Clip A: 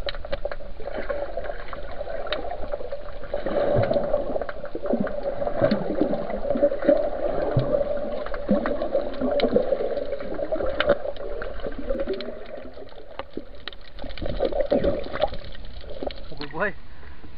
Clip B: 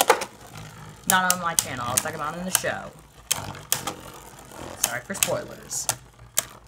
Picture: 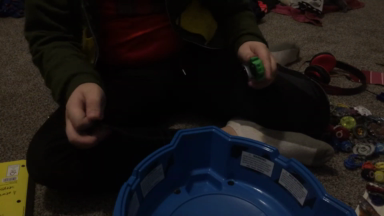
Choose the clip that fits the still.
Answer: B